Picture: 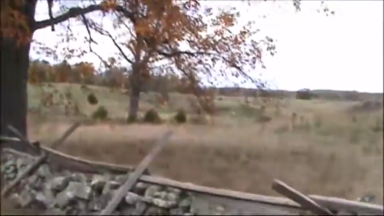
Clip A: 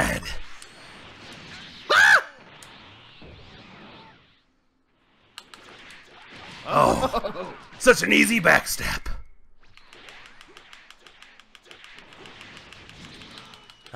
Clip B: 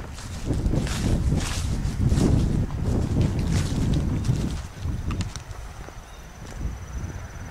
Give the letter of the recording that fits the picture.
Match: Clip B